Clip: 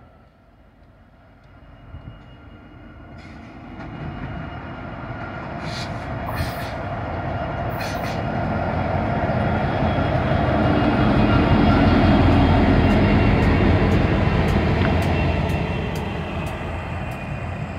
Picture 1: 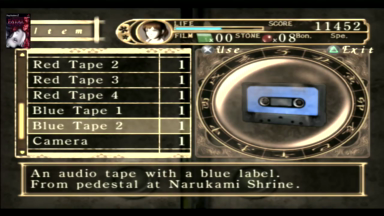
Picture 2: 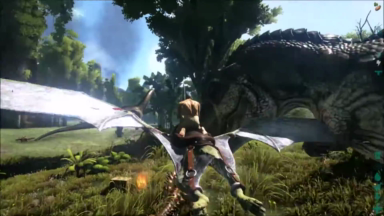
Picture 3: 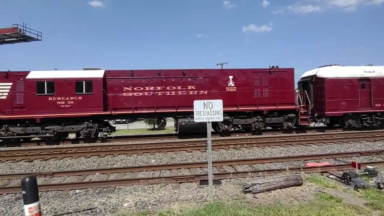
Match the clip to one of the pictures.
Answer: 3